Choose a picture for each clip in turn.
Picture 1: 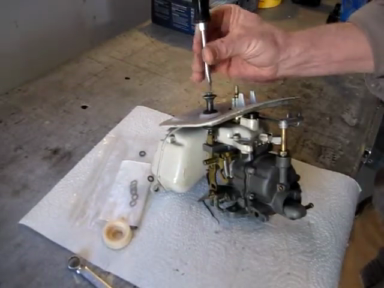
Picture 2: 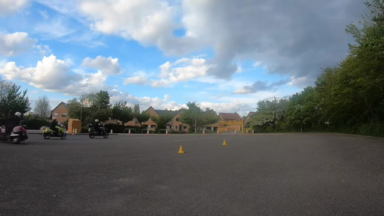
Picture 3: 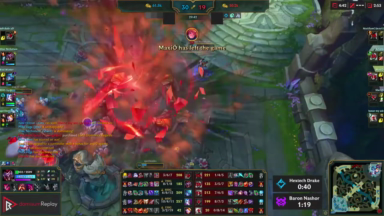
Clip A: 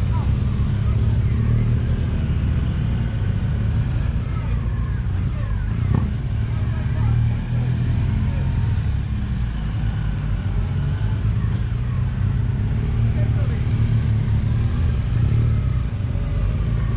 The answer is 2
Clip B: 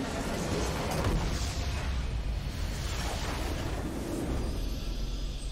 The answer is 3